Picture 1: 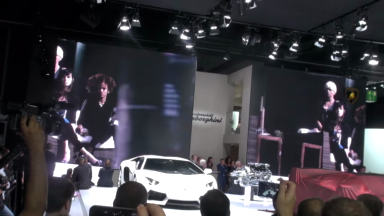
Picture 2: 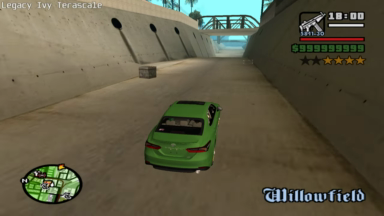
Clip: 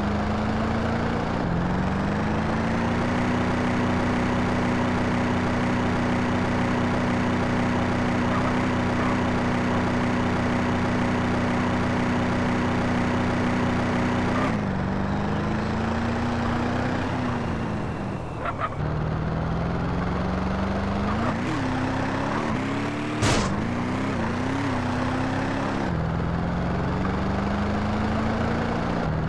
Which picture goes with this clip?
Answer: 2